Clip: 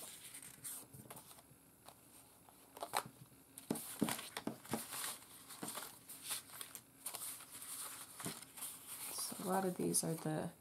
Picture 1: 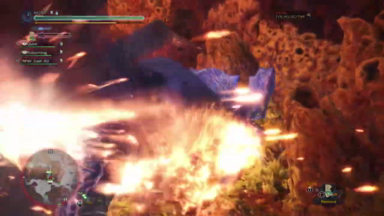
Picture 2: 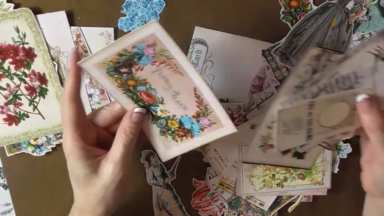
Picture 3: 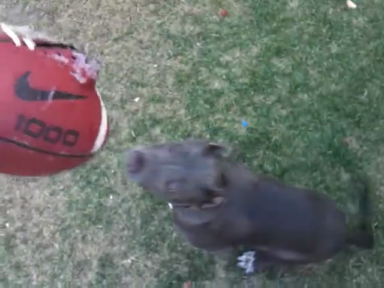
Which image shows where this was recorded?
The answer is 2